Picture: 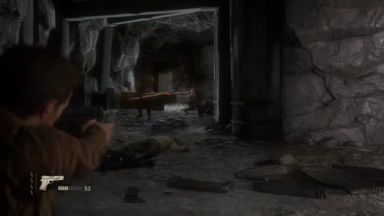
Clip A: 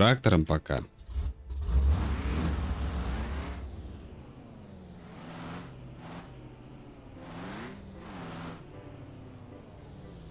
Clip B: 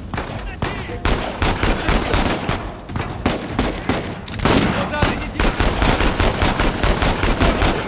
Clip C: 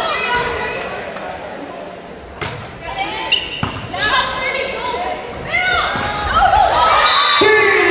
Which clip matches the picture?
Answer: B